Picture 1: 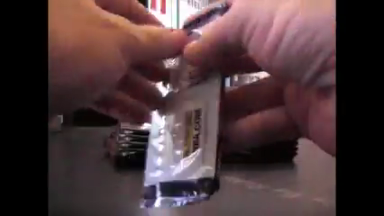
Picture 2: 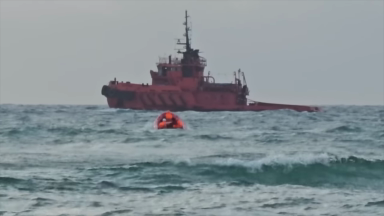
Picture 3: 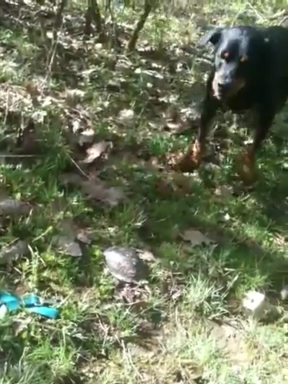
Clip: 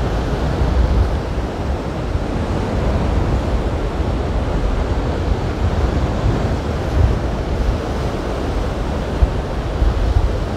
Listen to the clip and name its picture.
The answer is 2